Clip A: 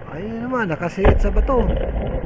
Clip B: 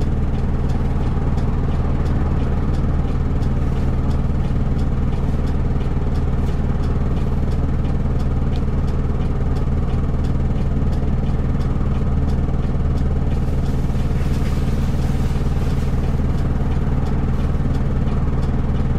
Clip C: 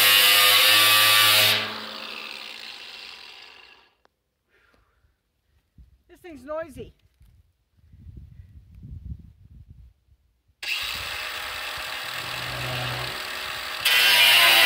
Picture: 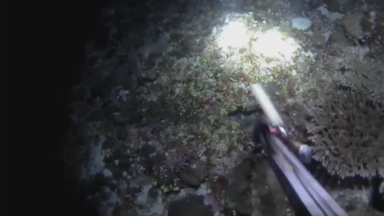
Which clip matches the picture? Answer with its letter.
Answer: A